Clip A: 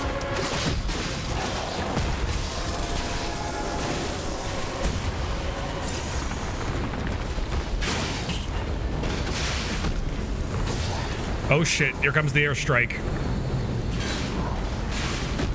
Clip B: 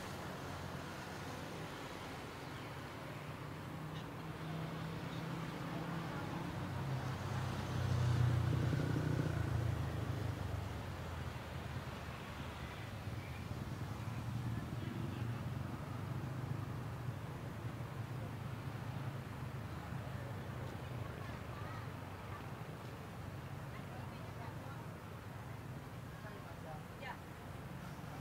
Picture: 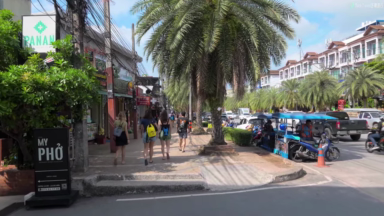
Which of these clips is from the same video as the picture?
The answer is B